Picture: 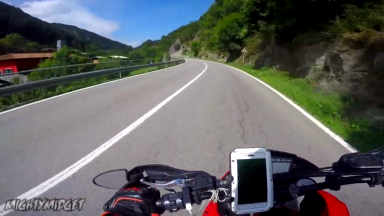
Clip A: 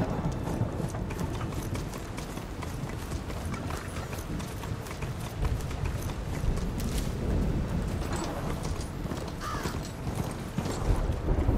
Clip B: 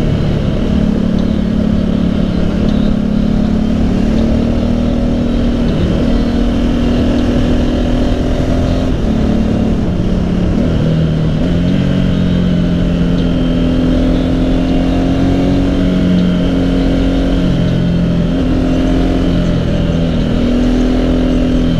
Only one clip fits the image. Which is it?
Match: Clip B